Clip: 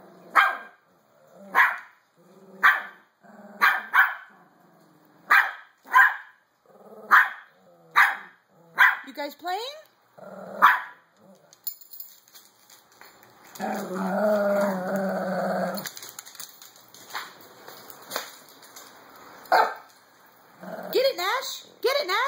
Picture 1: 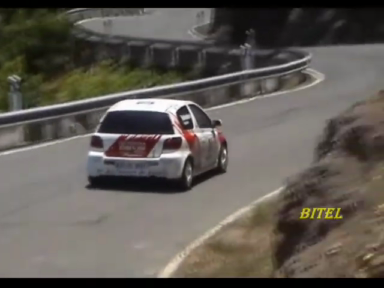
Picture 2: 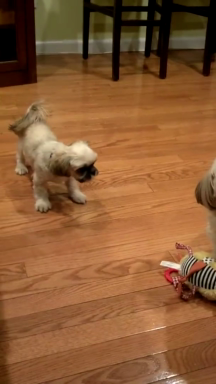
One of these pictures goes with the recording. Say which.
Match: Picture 2